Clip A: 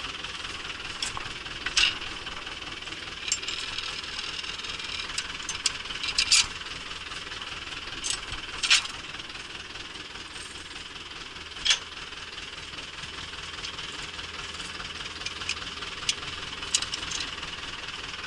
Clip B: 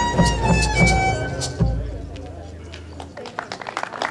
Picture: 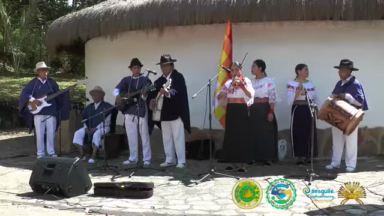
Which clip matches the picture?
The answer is B